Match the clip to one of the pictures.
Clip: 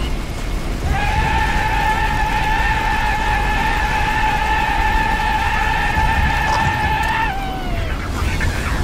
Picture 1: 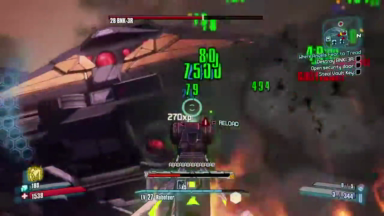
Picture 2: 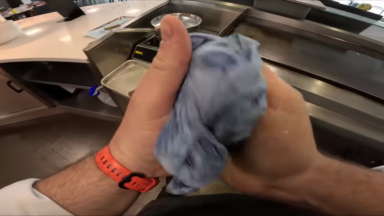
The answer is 1